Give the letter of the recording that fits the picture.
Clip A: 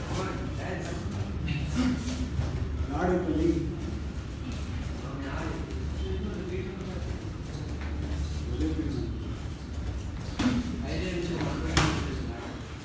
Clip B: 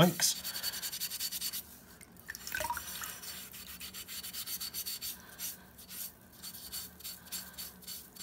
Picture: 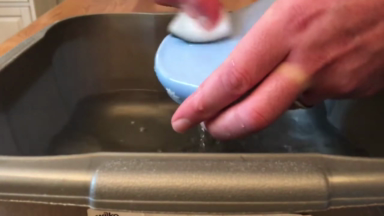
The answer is B